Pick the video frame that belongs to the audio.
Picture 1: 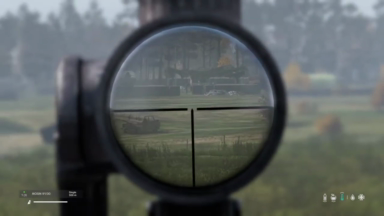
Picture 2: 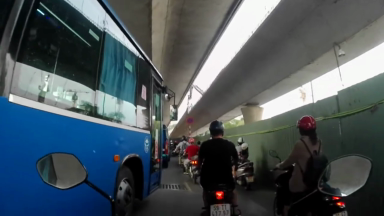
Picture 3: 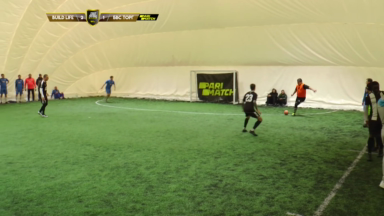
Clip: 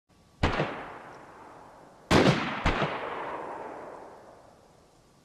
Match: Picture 1